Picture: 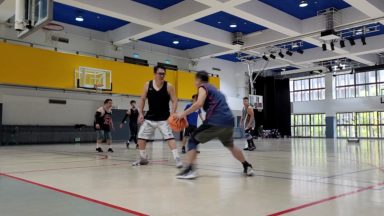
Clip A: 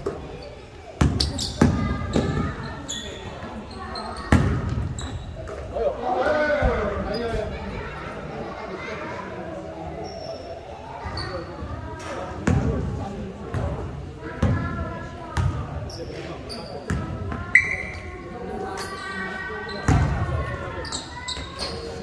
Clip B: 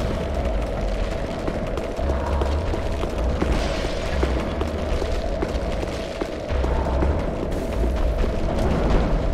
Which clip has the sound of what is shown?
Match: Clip A